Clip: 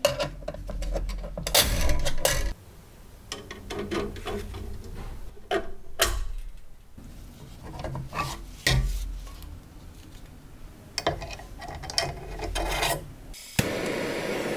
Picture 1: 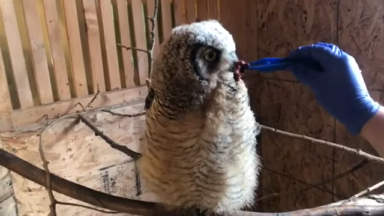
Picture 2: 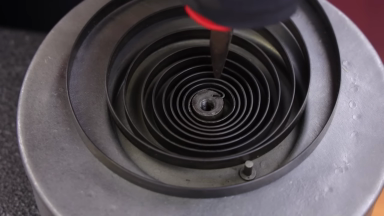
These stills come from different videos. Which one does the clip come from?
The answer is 2